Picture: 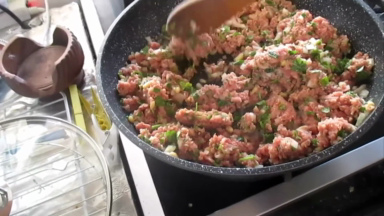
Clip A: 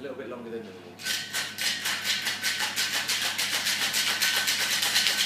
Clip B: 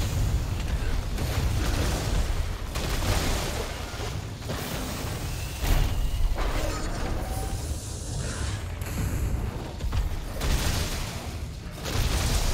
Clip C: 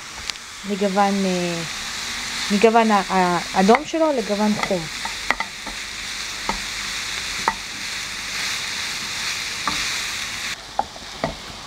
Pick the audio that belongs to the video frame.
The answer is C